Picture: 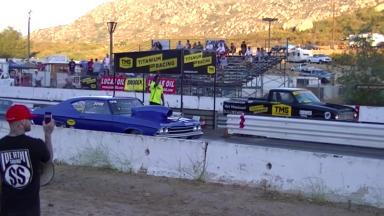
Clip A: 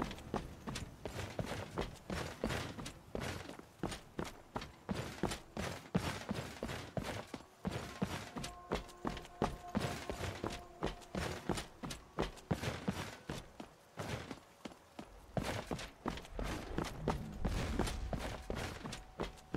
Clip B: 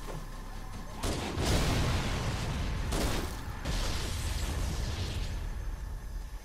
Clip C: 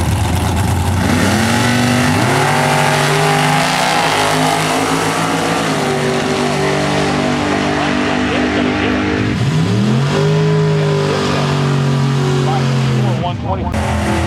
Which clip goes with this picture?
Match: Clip C